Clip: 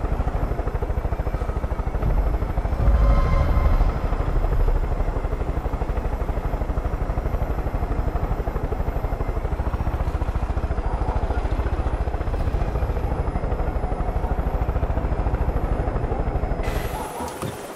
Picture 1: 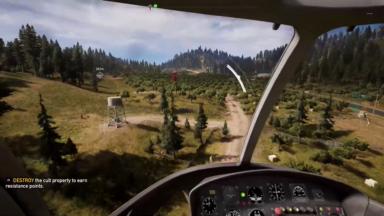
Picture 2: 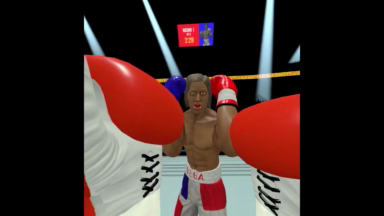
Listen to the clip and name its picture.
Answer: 1